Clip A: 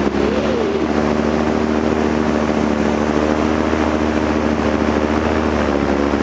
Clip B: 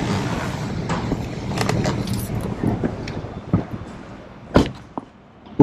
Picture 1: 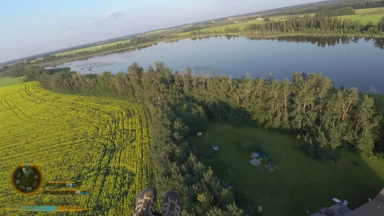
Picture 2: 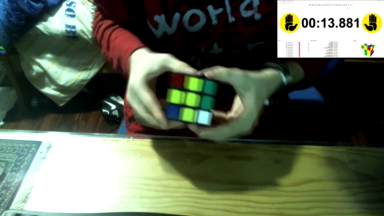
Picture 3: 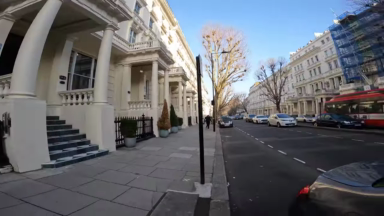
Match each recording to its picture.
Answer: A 1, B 3